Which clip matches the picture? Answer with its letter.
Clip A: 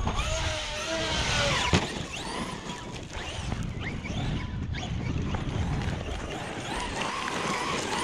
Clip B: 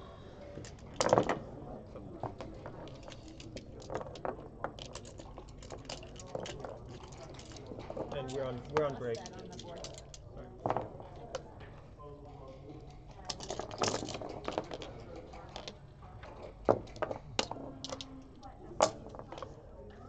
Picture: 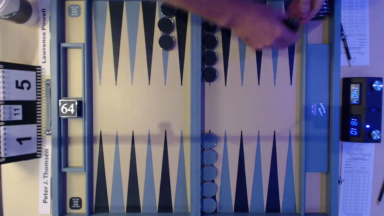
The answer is B